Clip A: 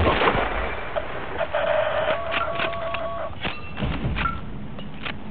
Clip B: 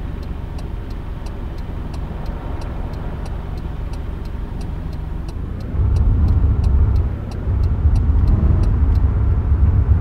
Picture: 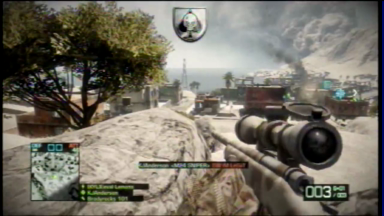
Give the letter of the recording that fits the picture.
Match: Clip A